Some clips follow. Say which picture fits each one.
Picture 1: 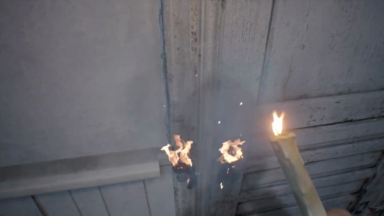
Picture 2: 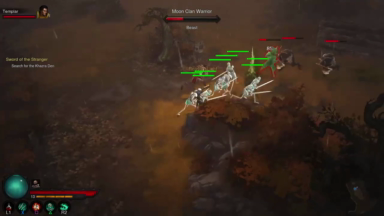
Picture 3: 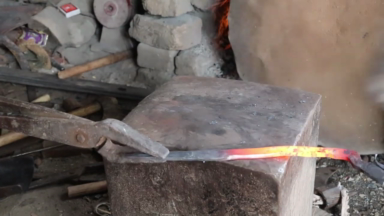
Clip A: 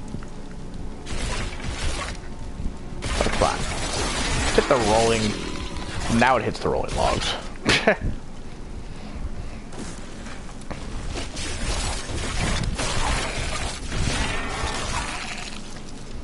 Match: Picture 2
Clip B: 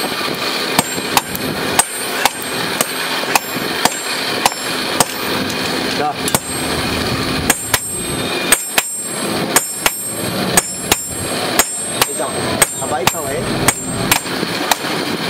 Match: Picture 3